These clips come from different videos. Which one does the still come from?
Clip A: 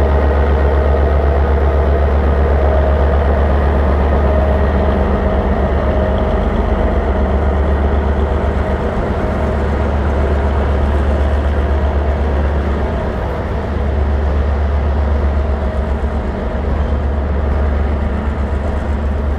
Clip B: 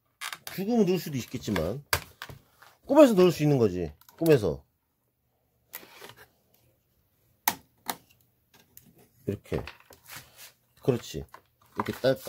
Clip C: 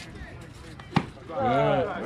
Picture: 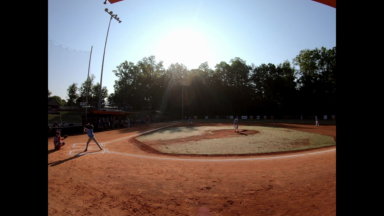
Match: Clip C